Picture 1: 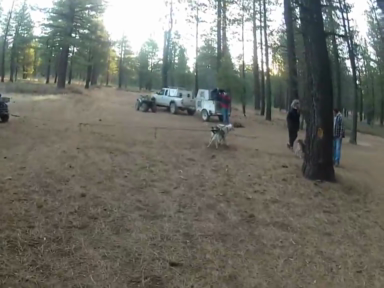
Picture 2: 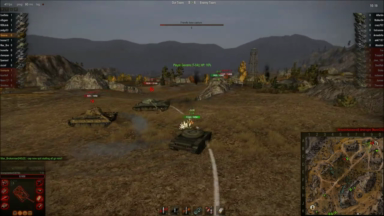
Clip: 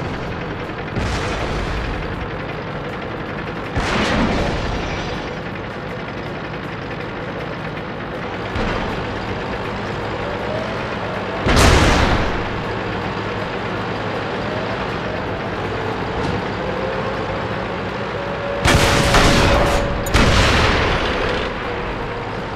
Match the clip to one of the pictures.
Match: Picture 2